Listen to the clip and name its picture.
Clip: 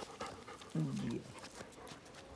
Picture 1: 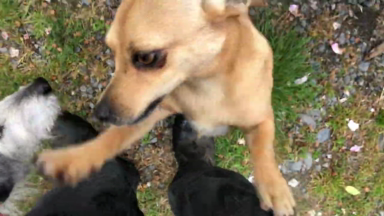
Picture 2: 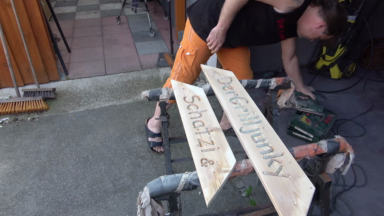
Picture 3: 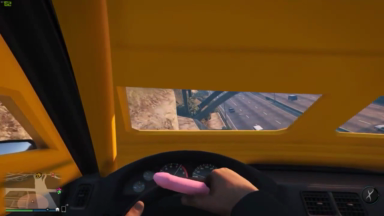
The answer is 1